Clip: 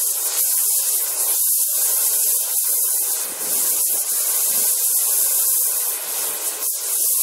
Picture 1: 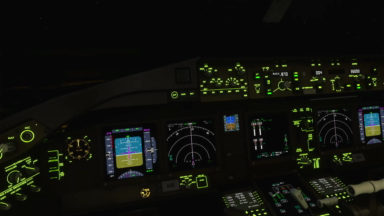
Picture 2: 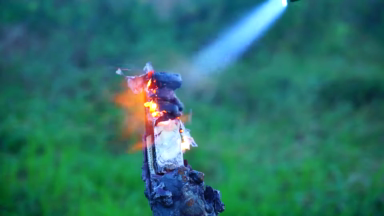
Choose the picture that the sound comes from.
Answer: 2